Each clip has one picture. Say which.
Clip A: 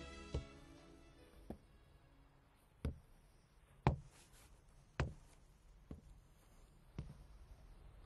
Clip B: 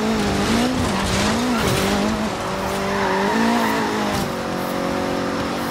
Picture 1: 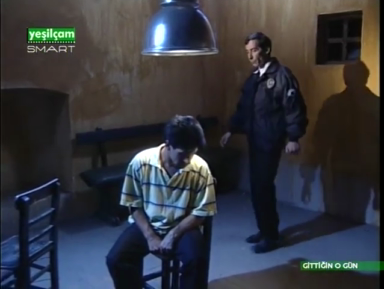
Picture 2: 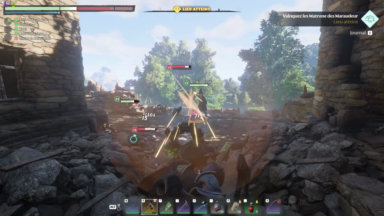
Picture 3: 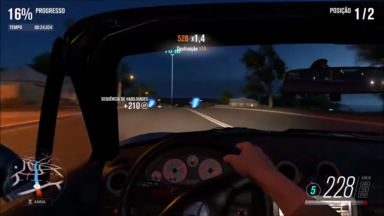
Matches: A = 1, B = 3